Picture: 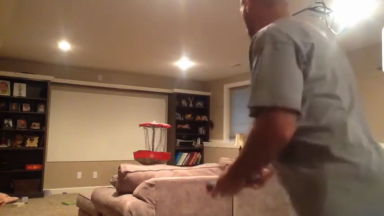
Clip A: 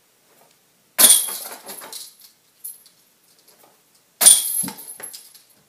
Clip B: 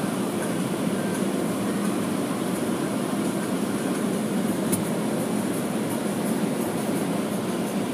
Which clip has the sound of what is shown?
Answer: A